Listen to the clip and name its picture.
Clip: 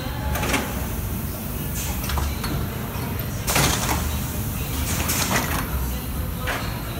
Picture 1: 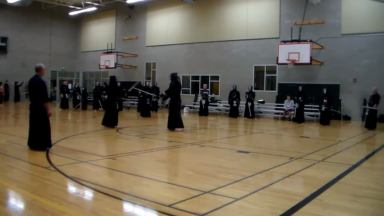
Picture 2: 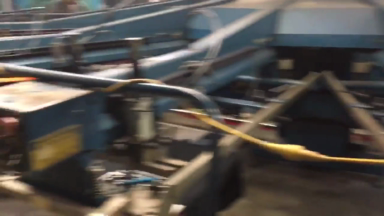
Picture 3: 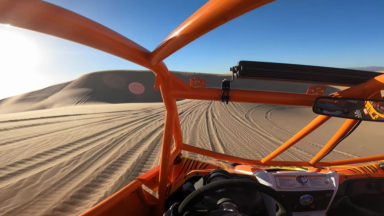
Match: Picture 2